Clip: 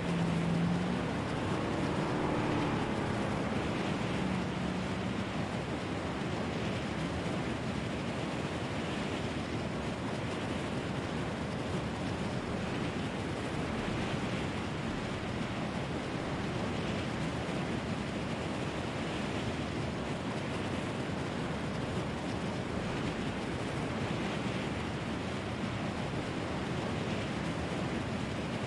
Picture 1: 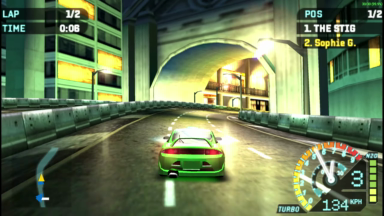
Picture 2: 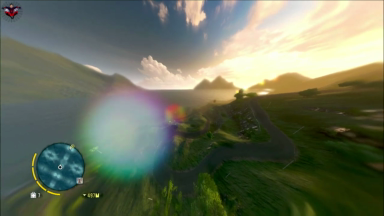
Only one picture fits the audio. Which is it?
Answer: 2